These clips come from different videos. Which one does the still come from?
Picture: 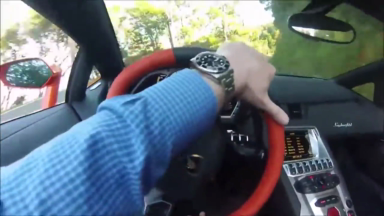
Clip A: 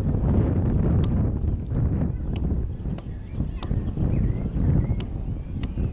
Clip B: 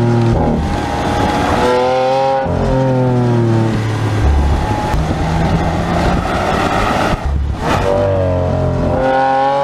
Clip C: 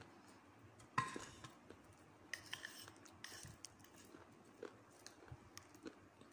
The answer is B